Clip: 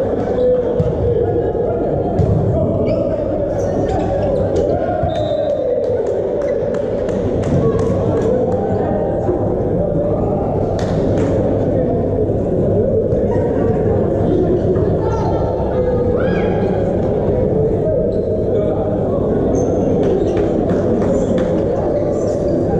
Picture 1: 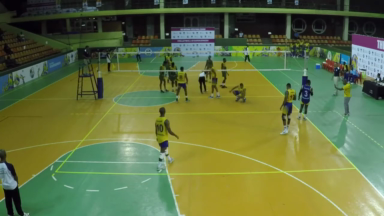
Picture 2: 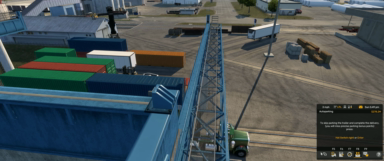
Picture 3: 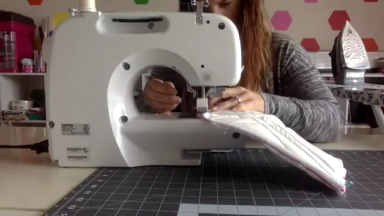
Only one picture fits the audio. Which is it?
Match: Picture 1